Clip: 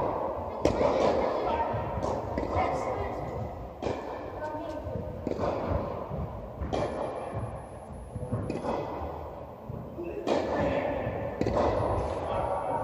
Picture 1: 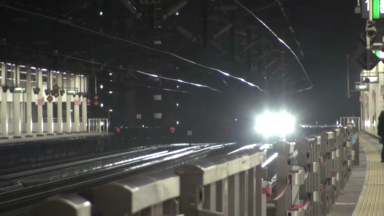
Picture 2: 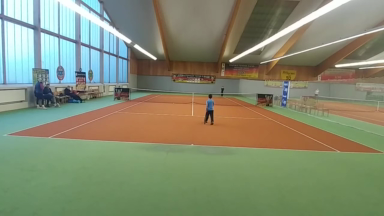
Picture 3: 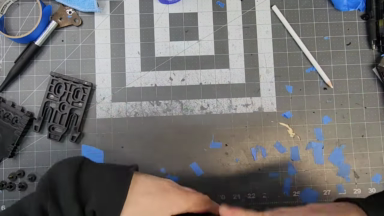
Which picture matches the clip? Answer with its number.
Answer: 2